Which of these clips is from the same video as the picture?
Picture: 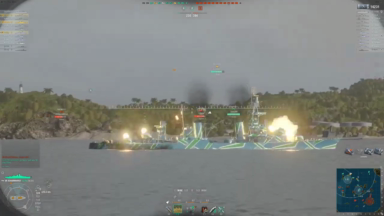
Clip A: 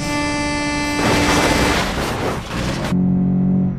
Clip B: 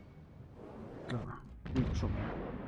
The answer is B